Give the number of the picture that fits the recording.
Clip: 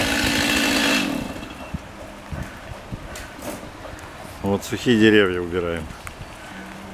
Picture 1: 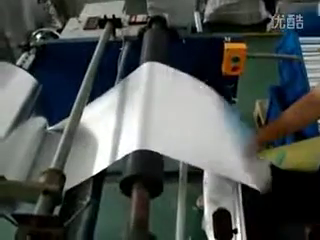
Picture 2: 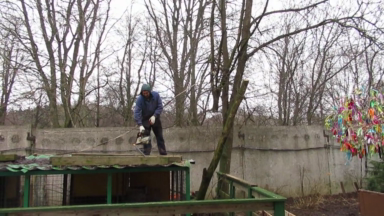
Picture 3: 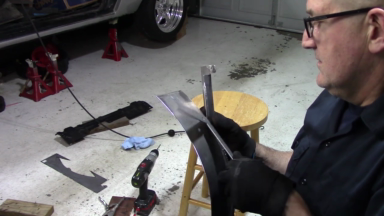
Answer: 2